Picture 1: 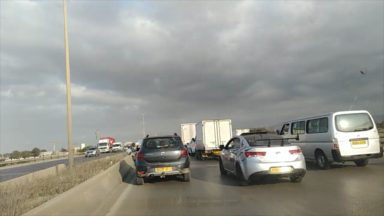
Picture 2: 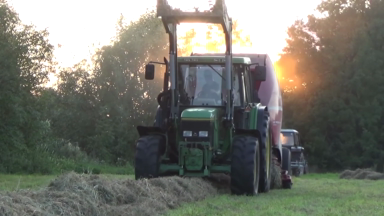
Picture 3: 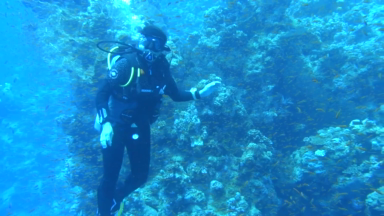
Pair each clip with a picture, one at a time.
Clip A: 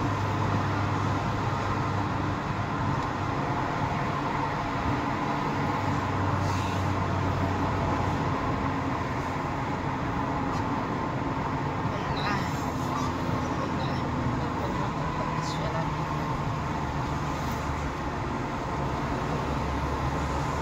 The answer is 1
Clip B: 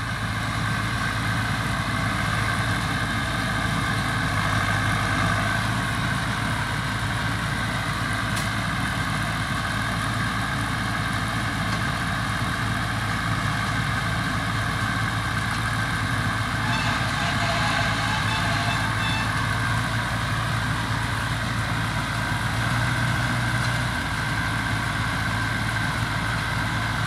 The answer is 2